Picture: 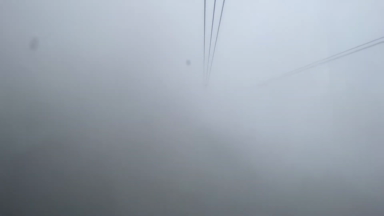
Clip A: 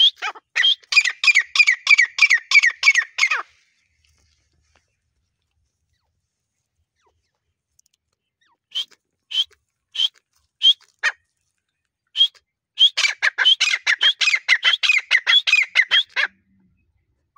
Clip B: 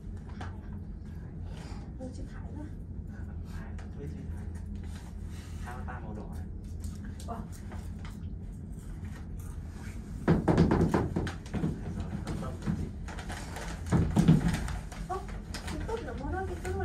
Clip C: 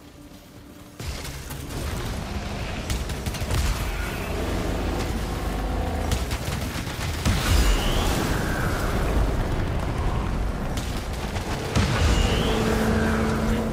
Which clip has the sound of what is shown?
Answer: B